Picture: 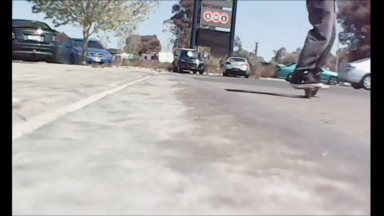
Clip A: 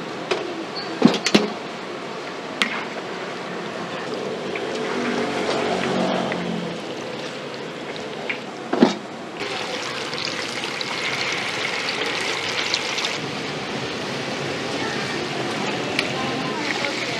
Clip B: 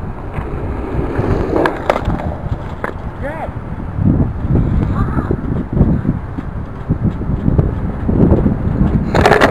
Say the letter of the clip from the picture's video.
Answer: B